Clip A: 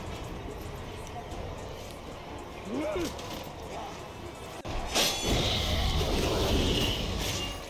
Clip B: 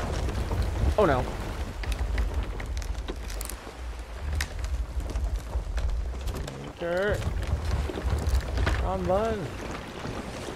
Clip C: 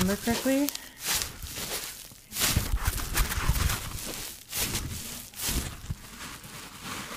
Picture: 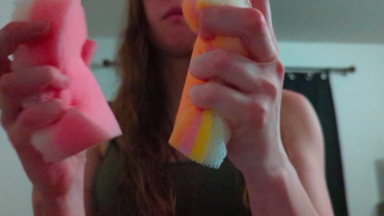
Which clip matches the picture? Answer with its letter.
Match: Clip C